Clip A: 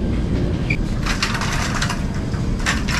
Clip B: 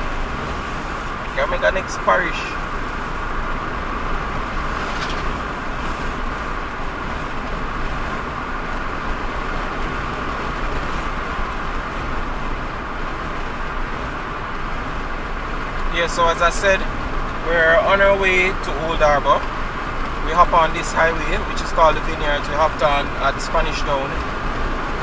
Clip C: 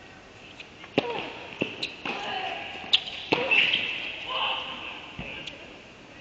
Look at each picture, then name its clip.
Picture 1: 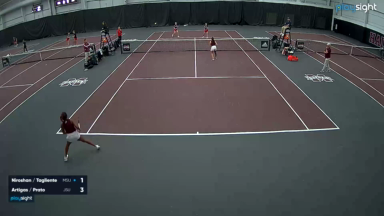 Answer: C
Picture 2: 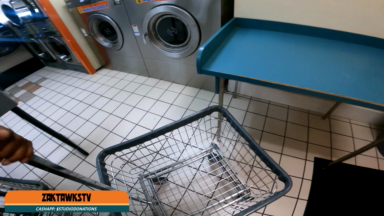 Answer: A